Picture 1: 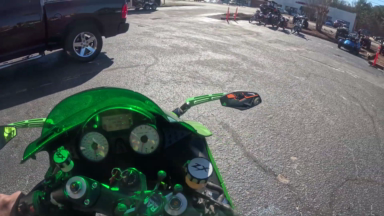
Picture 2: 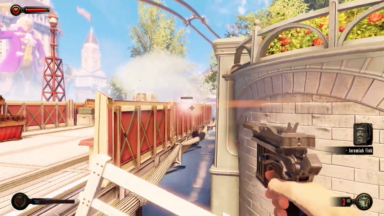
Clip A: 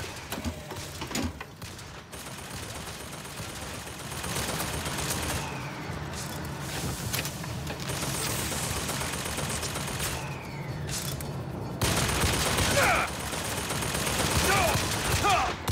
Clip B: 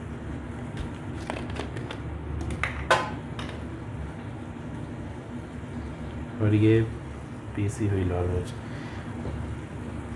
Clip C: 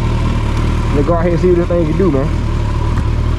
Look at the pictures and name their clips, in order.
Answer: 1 C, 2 A